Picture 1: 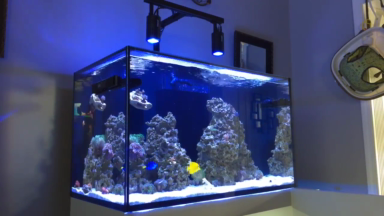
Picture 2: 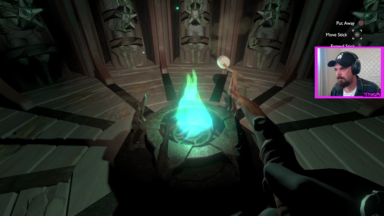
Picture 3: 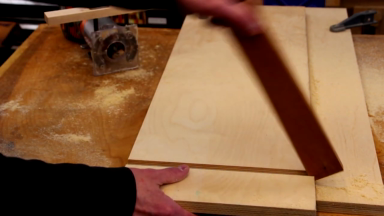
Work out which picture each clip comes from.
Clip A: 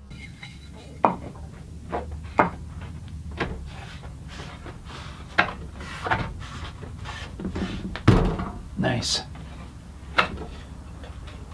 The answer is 3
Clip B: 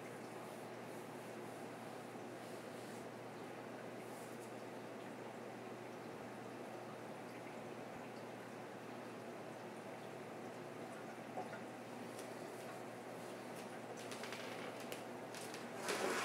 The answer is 1